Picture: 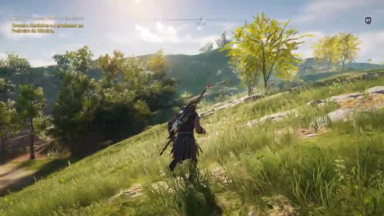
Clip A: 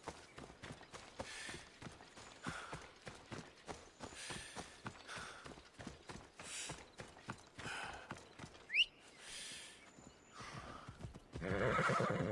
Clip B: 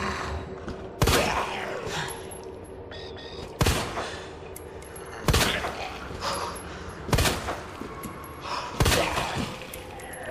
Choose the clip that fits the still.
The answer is A